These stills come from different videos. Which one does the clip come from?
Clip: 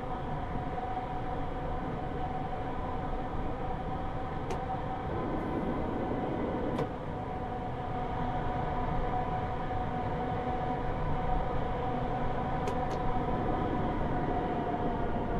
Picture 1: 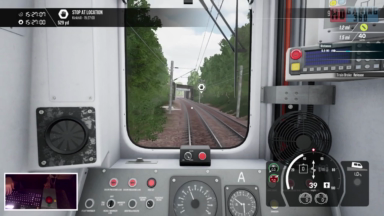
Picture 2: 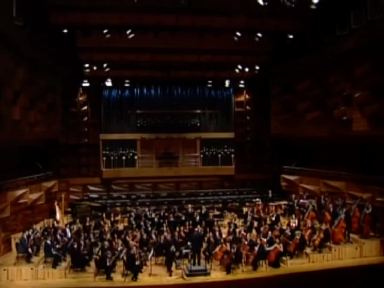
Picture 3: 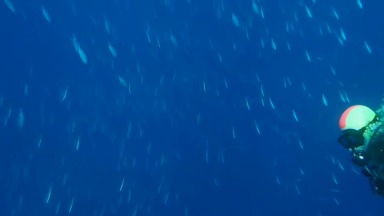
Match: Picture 1